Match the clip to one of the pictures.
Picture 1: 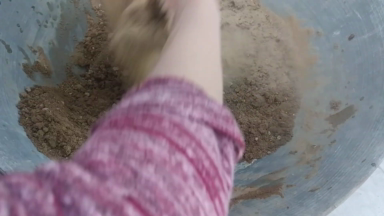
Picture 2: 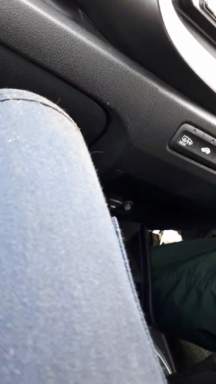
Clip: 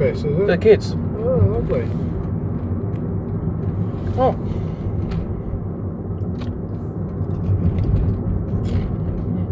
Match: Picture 2